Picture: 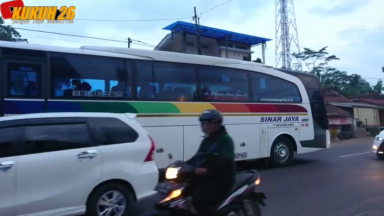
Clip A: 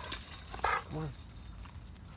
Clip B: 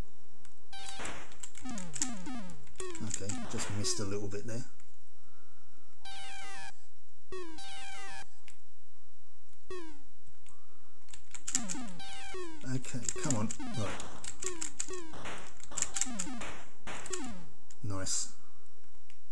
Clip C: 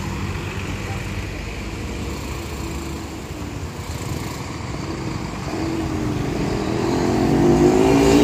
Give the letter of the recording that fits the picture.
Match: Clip C